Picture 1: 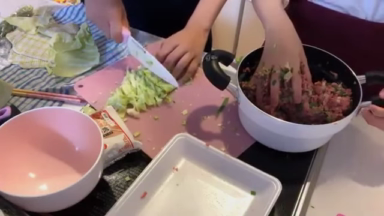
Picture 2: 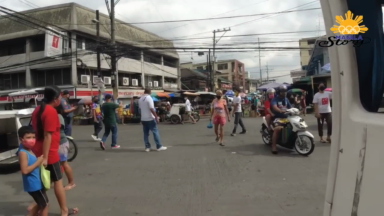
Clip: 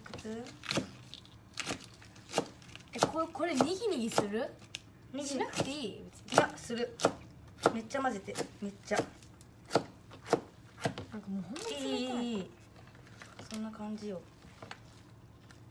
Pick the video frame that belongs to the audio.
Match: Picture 1